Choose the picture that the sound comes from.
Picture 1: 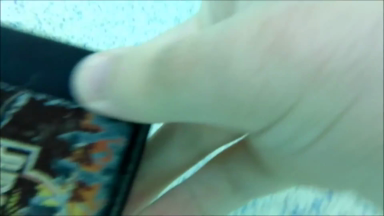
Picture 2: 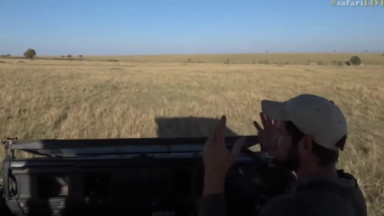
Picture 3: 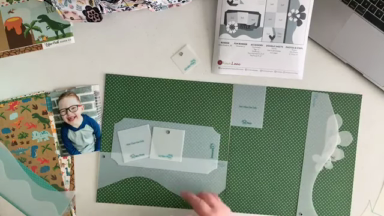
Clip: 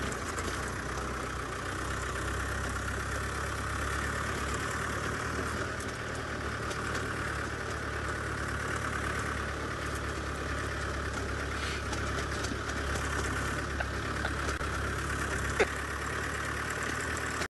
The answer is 2